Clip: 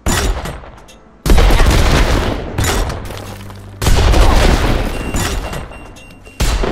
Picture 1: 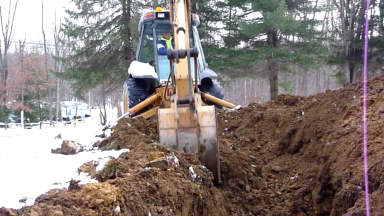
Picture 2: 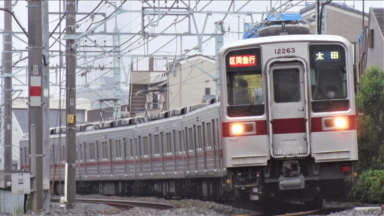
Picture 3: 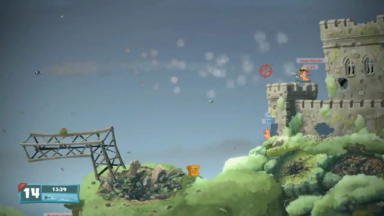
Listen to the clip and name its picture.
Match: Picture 3